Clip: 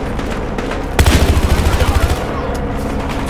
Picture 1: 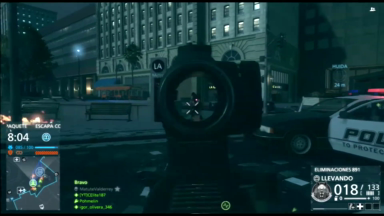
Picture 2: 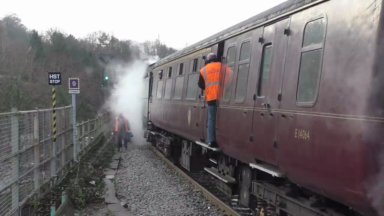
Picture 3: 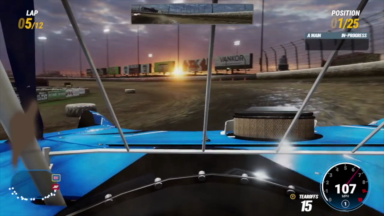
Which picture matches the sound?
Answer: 1